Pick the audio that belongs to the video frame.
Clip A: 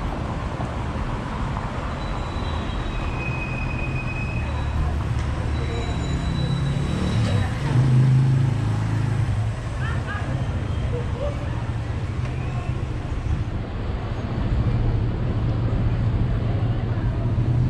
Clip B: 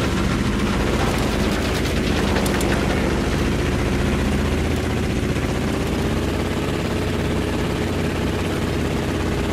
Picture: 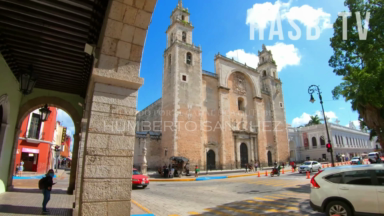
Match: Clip A